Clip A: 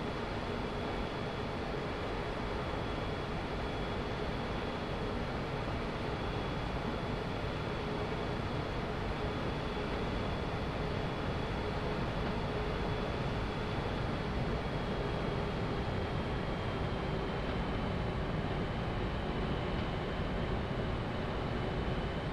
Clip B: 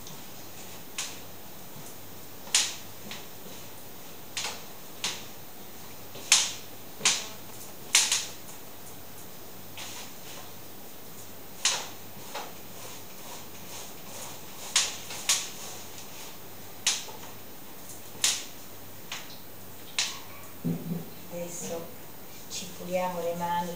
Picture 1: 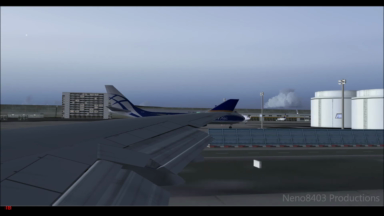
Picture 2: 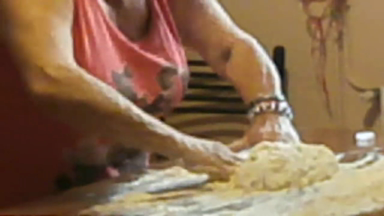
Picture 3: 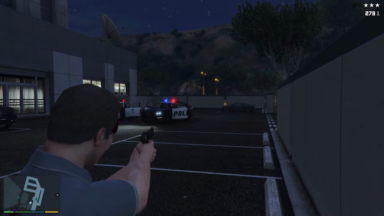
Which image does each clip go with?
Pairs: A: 1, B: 2